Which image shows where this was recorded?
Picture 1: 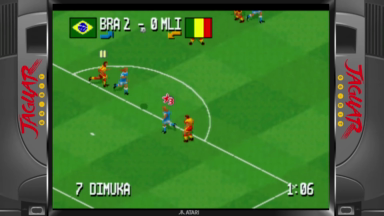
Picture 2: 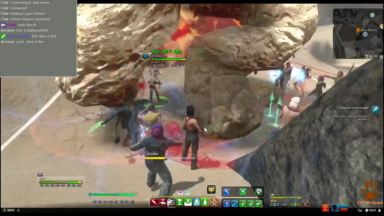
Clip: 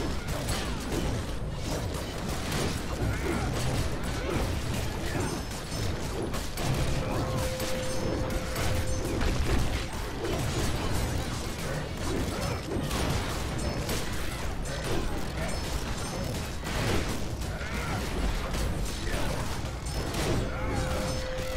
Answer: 2